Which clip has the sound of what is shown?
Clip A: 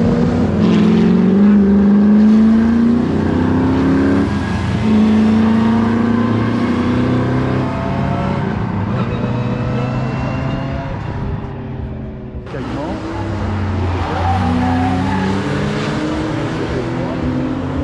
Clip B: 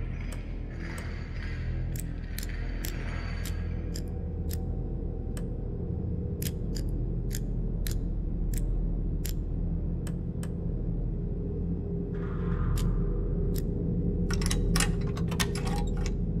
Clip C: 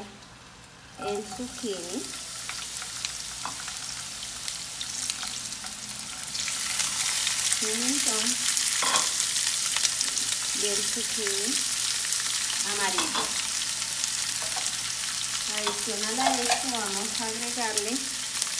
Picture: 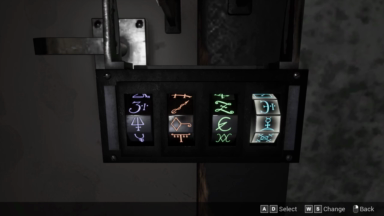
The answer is B